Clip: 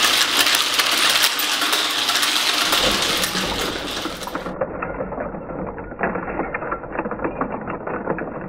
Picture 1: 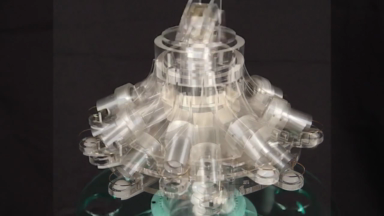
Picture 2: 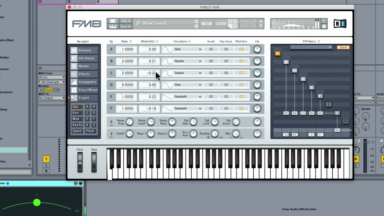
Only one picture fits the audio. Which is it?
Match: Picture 1